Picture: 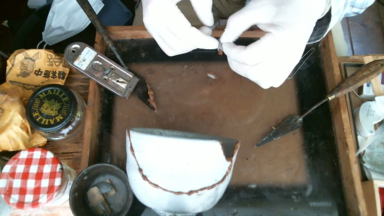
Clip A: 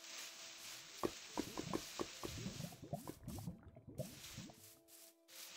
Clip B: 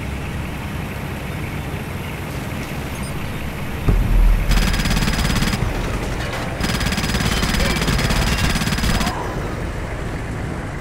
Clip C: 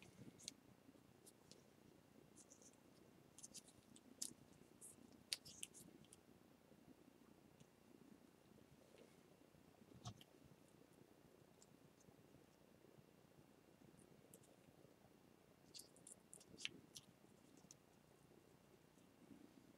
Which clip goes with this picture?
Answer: C